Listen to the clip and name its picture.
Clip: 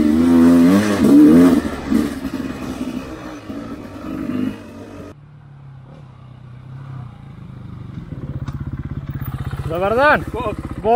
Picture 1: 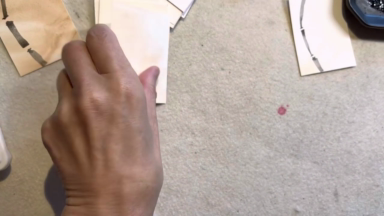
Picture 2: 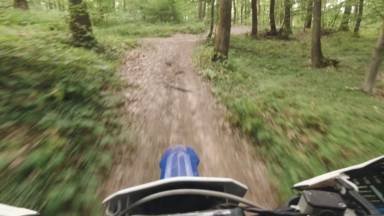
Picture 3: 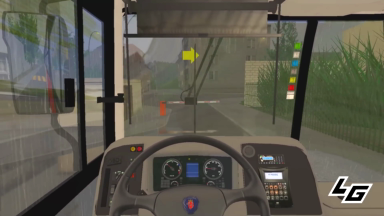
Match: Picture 2